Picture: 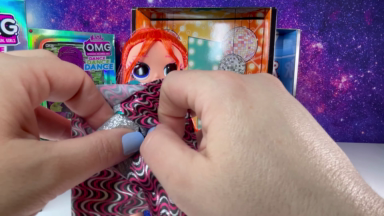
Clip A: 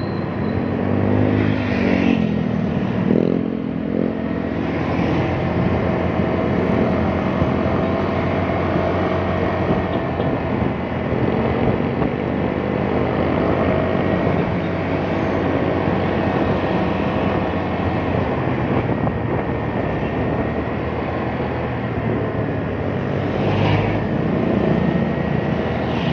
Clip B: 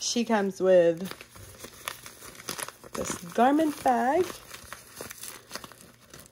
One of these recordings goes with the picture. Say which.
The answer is B